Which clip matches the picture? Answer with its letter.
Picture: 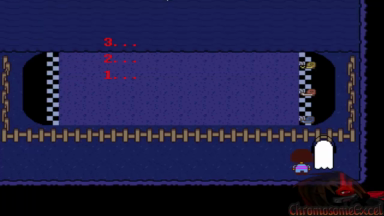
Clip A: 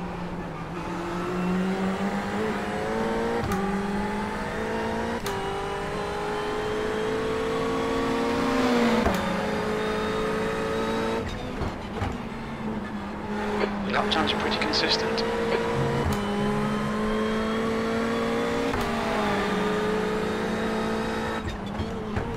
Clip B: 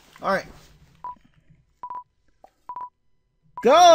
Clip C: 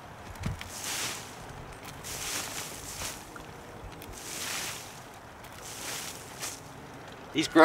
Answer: B